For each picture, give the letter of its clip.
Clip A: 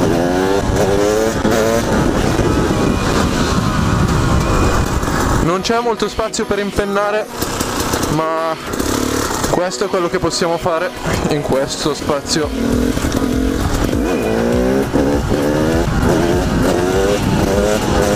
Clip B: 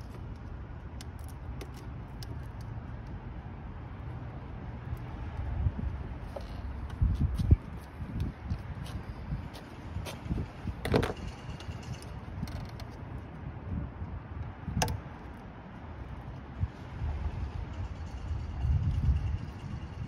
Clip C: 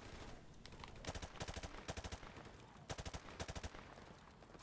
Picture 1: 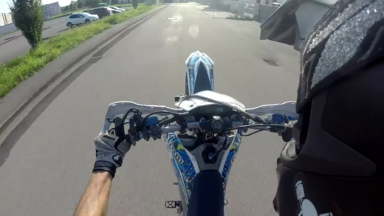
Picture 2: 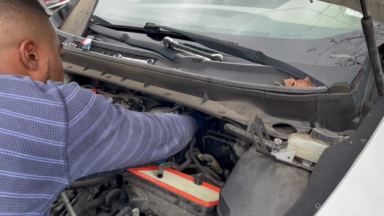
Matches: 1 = A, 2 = B